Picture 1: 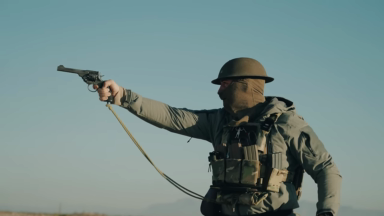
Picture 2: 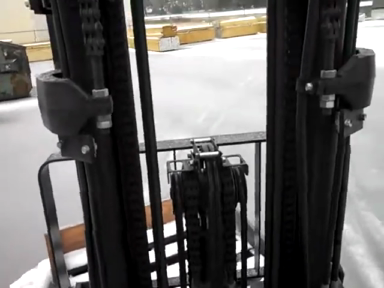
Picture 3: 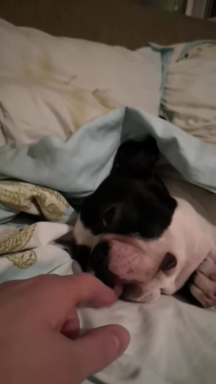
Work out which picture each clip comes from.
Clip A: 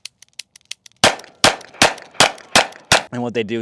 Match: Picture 1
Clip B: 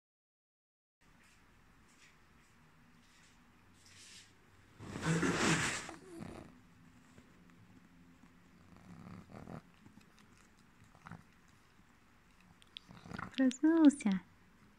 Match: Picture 3